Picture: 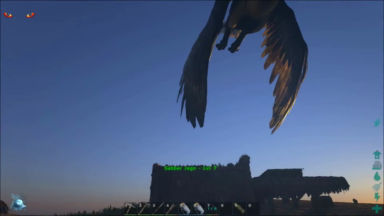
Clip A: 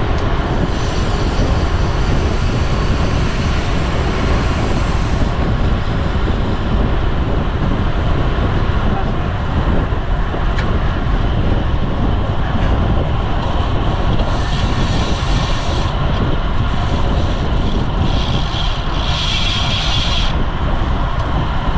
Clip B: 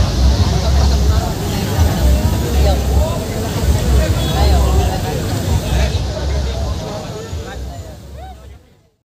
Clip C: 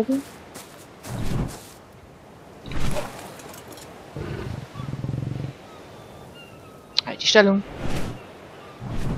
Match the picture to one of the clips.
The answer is C